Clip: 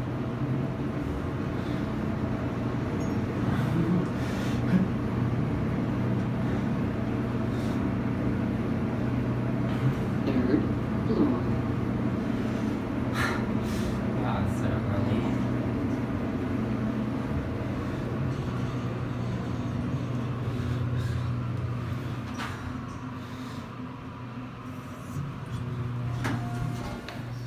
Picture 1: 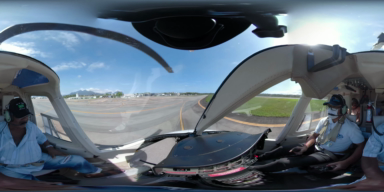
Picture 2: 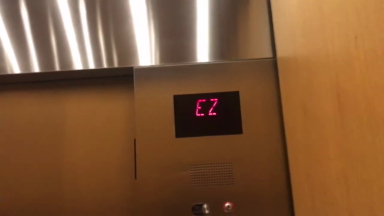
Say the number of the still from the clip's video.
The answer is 2